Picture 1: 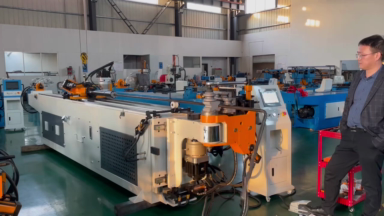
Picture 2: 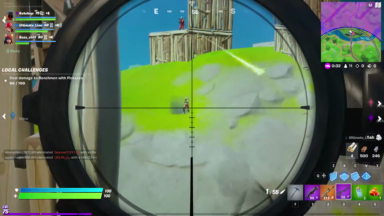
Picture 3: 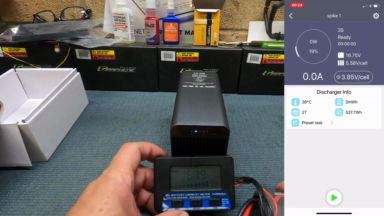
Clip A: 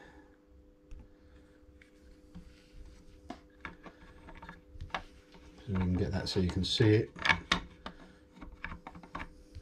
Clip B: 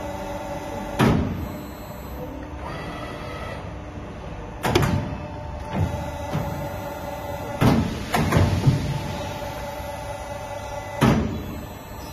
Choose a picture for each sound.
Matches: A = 3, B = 1